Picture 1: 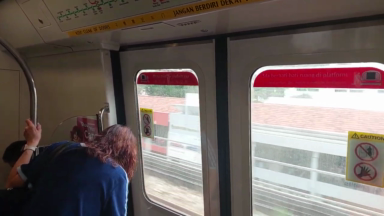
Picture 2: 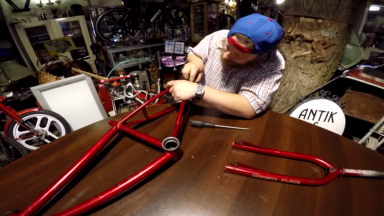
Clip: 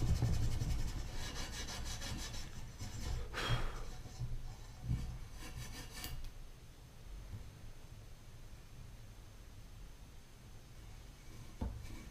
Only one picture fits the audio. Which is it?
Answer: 2